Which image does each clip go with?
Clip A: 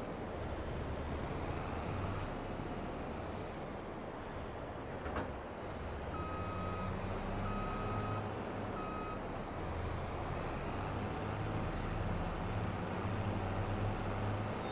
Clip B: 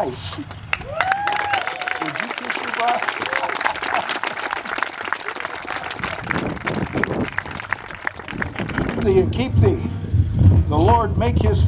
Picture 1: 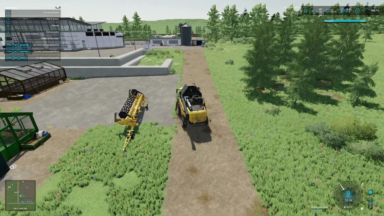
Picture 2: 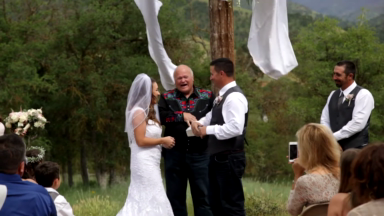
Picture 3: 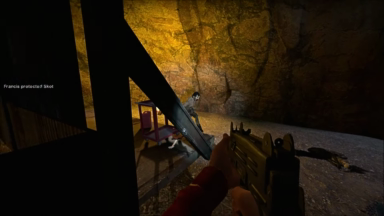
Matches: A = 1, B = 2